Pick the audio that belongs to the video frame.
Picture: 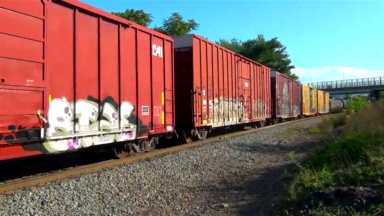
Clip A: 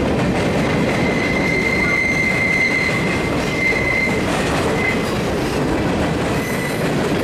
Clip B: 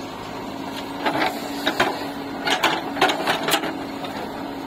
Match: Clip A